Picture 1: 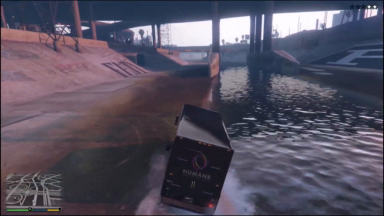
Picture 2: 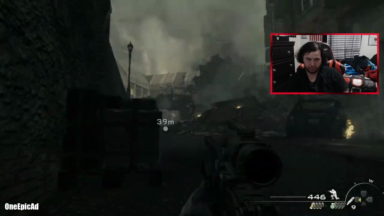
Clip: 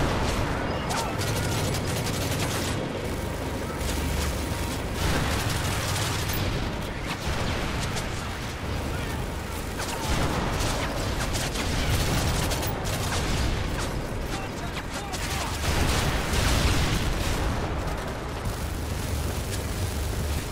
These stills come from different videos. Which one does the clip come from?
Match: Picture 2